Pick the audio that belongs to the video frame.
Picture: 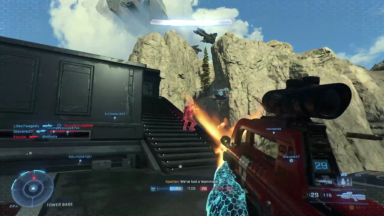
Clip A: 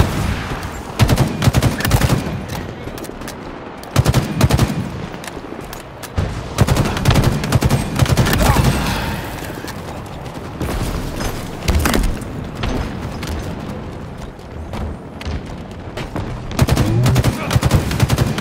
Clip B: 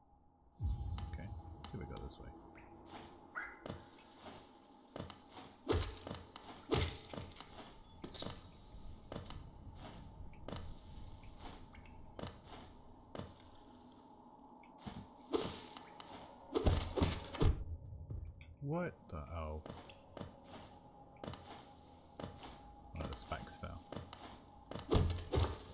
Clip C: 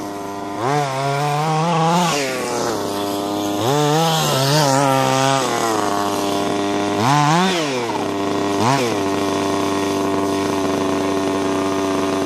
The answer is A